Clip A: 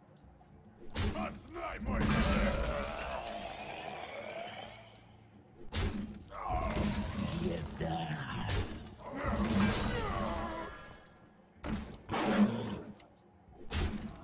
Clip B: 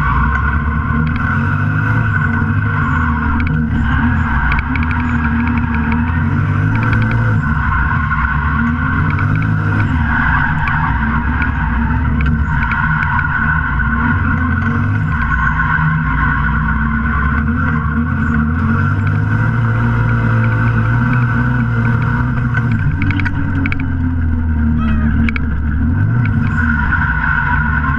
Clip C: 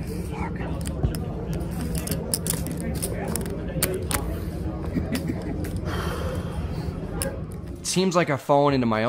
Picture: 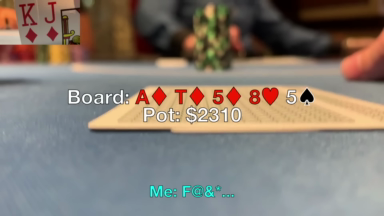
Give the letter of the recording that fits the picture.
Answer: C